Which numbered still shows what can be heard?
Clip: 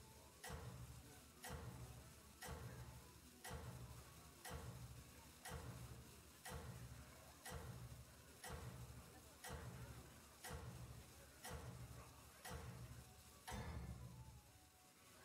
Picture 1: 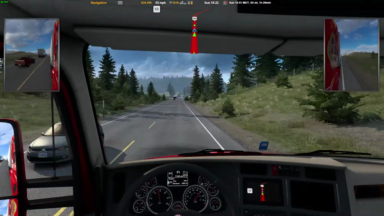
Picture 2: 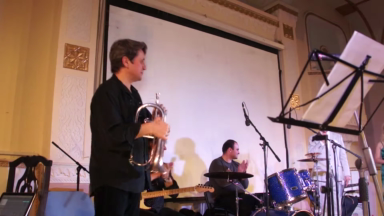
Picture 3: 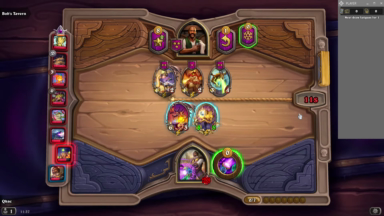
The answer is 3